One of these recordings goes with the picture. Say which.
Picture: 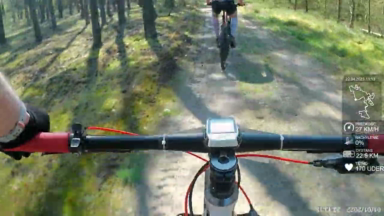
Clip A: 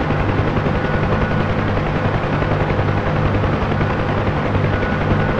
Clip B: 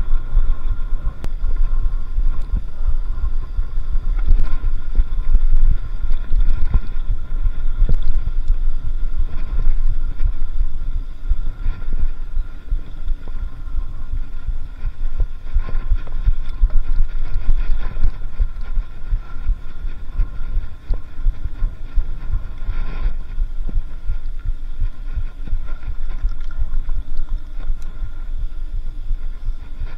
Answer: B